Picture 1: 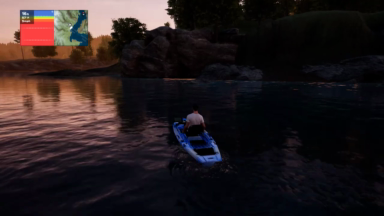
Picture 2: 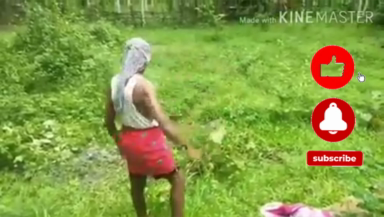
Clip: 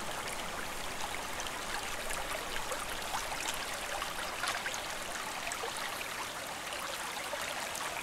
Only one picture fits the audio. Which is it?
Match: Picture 1